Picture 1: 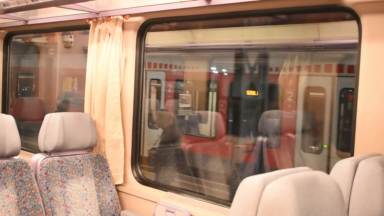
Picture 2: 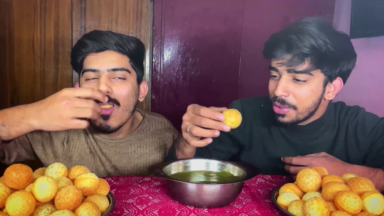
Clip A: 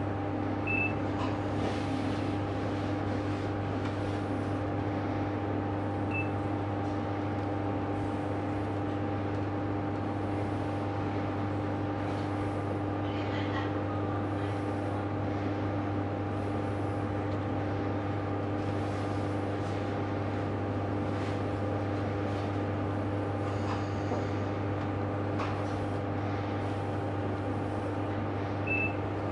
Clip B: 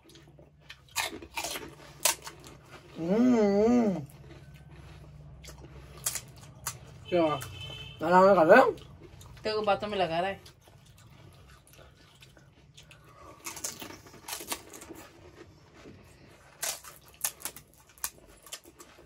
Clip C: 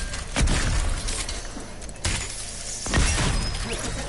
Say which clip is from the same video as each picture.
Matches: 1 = A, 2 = B